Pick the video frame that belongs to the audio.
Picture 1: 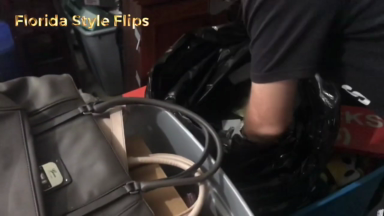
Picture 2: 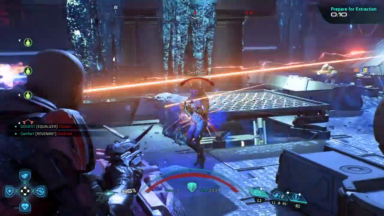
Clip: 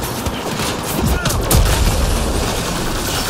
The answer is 2